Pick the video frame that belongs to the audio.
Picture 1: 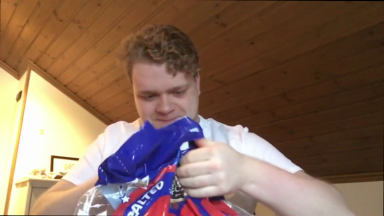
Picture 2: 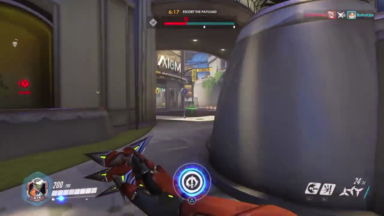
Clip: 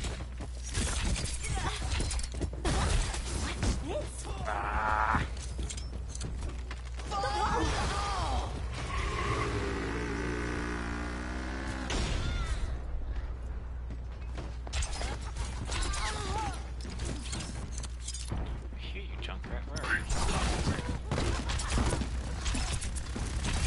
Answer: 2